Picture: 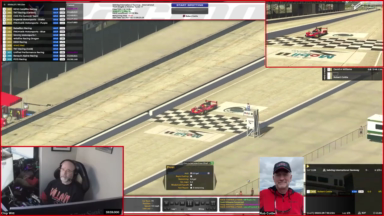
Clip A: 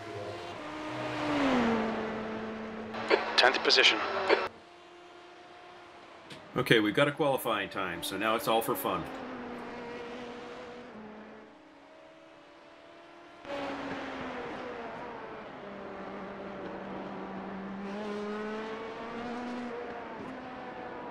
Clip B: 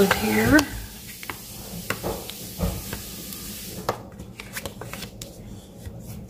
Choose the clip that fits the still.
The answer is A